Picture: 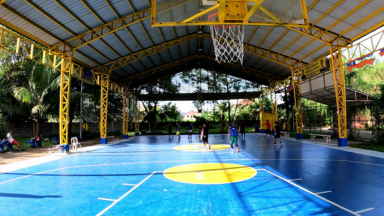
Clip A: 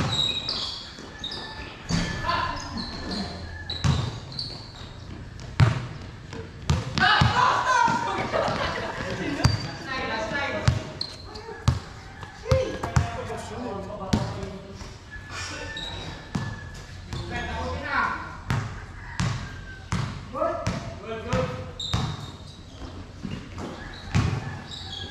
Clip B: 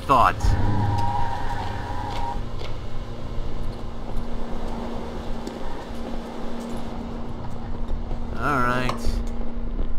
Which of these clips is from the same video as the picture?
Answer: A